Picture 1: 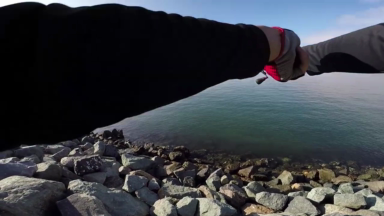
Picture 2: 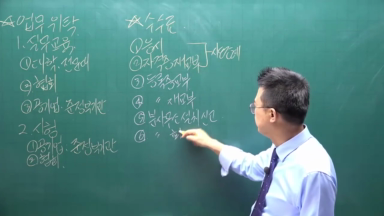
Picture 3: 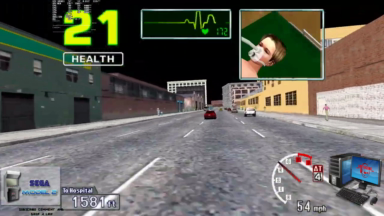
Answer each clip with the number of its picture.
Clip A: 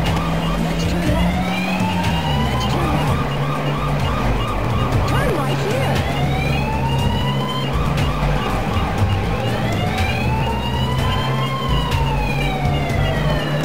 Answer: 3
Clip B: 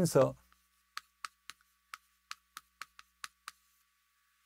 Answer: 2